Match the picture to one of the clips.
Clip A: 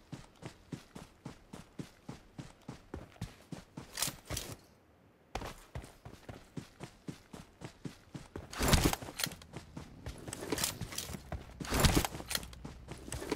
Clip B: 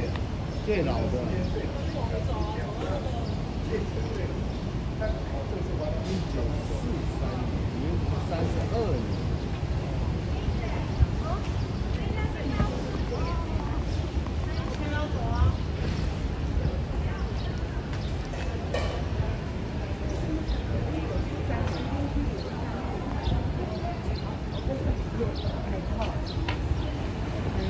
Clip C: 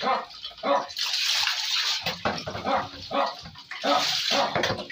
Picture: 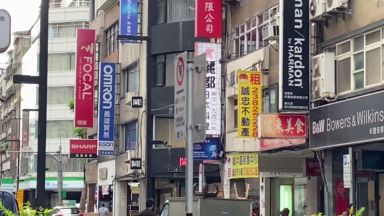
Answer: B